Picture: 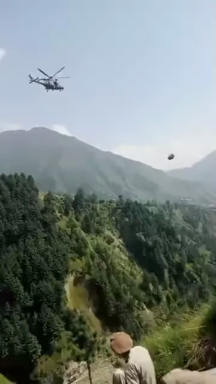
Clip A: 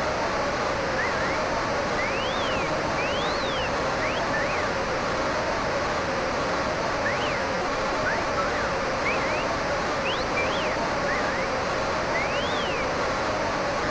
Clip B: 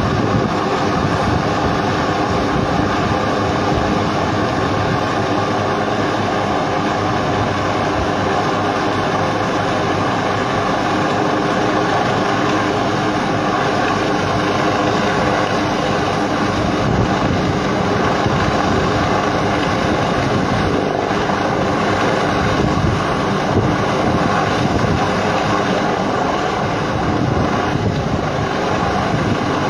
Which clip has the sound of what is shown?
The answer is B